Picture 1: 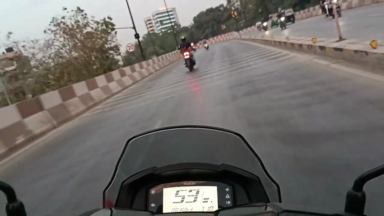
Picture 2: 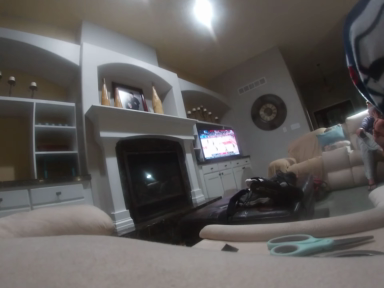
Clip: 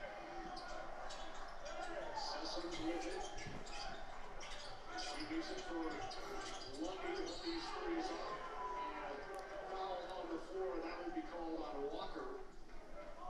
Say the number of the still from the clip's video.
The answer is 2